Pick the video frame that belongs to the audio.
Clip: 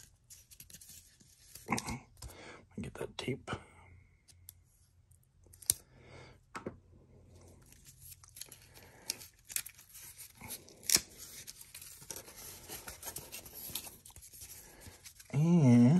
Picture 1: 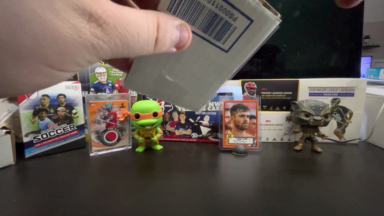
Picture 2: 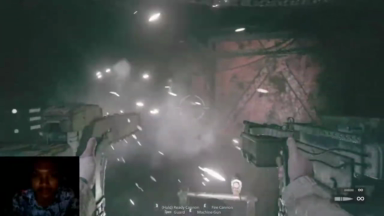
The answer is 1